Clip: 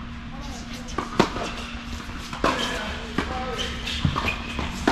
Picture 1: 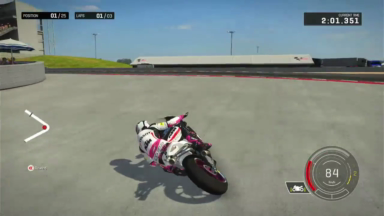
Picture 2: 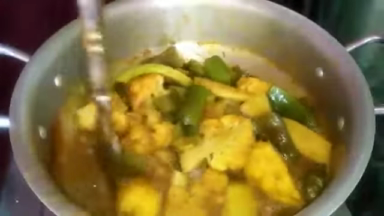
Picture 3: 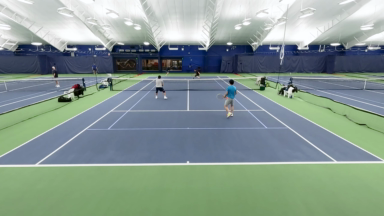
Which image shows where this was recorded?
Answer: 3